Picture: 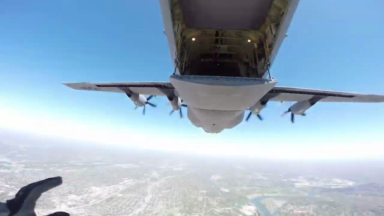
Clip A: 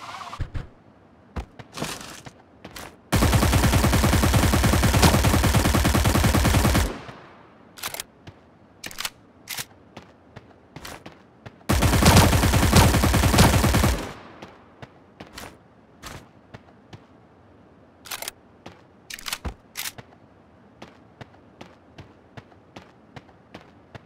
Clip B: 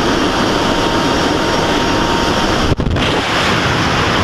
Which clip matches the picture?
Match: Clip B